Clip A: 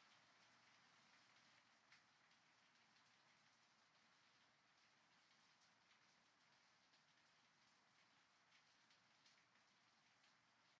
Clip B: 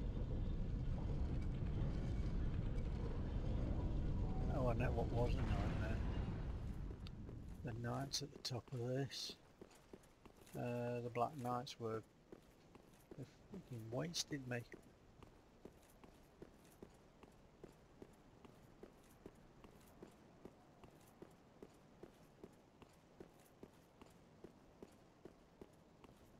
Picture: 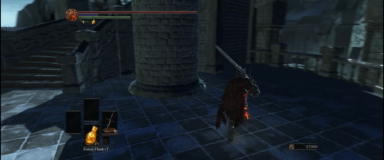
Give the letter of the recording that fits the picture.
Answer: B